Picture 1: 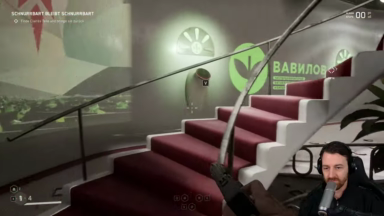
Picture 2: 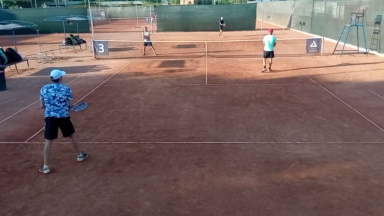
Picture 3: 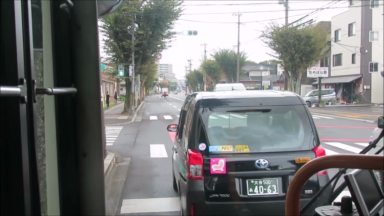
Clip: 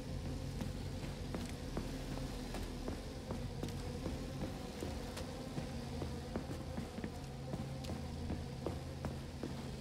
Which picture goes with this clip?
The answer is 1